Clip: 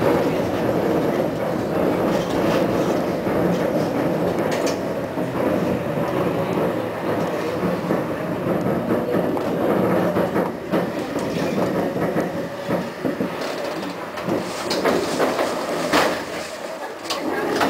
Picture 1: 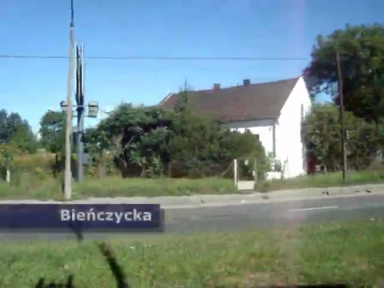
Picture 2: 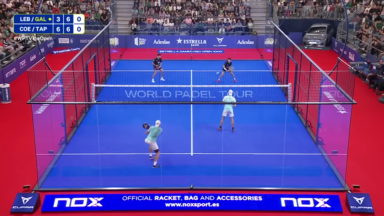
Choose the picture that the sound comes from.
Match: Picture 1